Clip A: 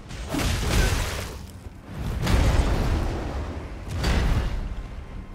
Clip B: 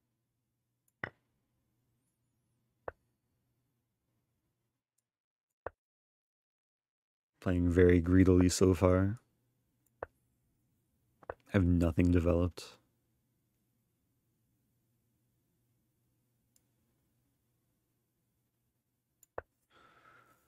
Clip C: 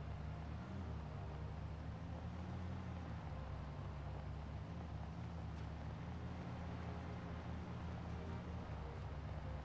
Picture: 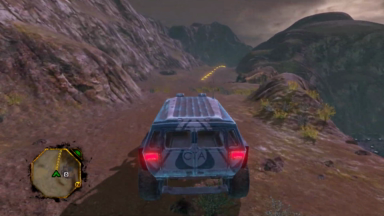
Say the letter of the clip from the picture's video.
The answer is C